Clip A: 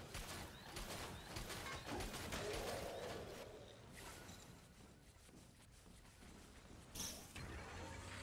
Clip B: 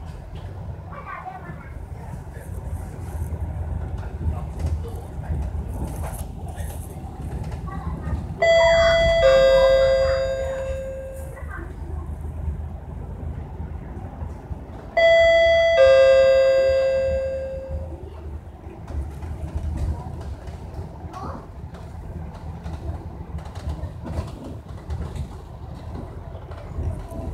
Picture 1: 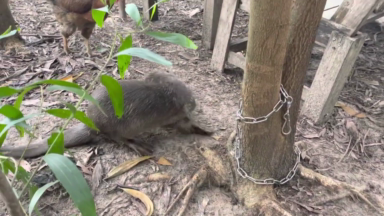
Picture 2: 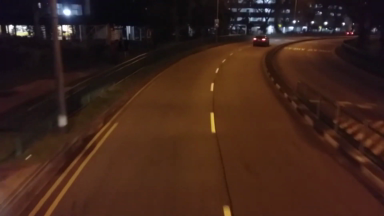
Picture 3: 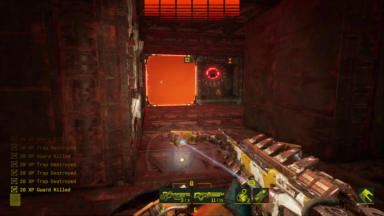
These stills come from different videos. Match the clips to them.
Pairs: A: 3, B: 2